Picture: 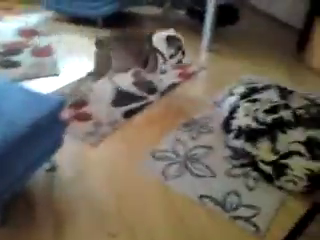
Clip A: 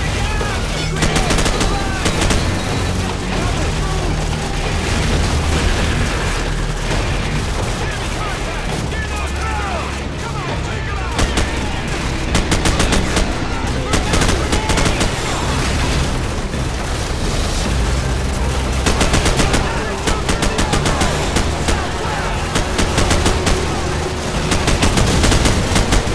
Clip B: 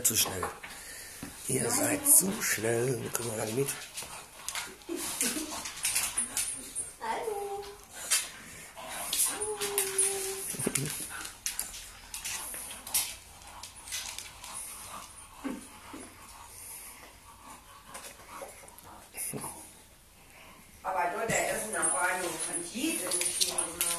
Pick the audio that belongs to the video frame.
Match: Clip B